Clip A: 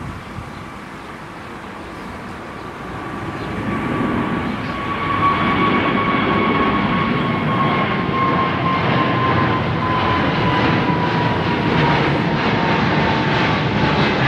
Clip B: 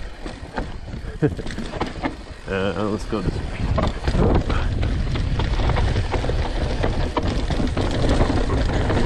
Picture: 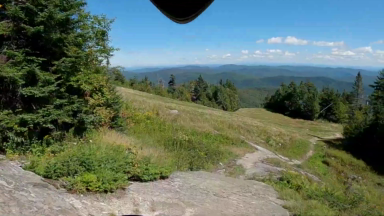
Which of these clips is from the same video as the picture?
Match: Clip B